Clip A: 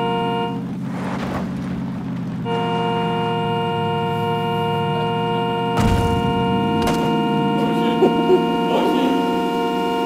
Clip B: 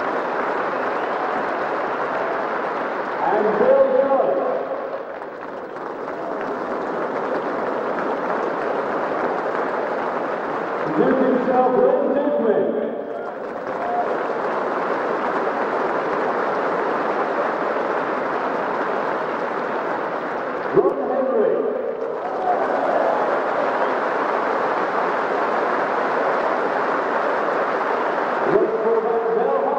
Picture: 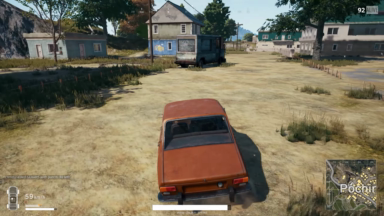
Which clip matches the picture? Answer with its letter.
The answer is A